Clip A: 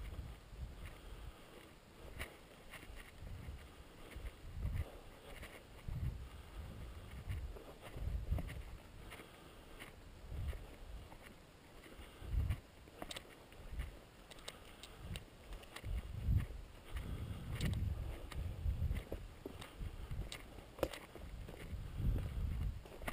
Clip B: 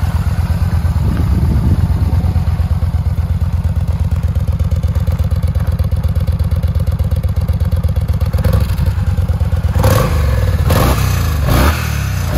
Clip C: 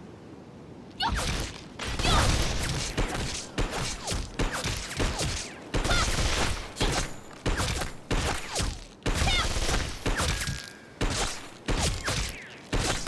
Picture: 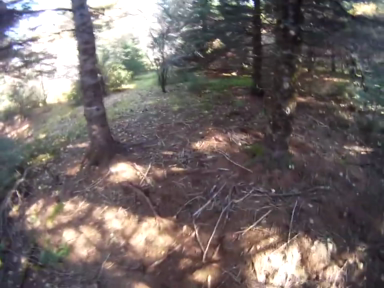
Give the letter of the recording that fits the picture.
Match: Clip A